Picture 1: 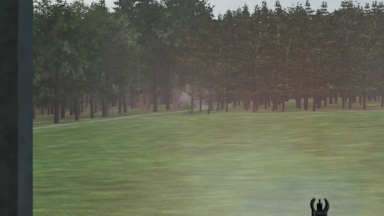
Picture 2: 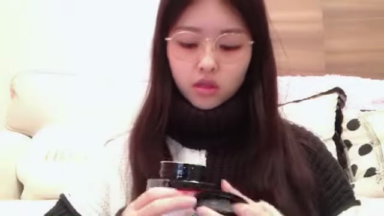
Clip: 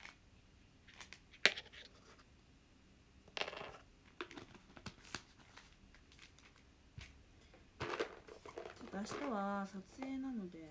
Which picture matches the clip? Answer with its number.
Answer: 2